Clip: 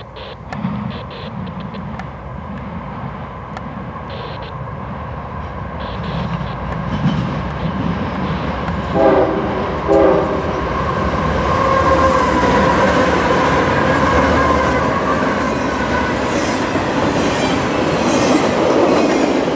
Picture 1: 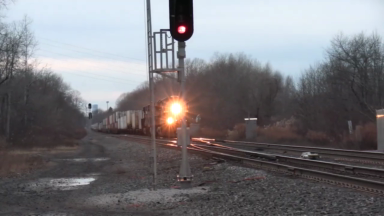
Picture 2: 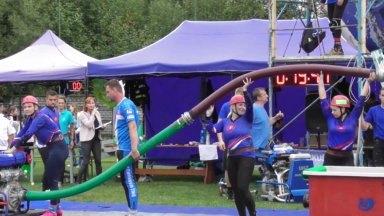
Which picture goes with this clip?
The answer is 1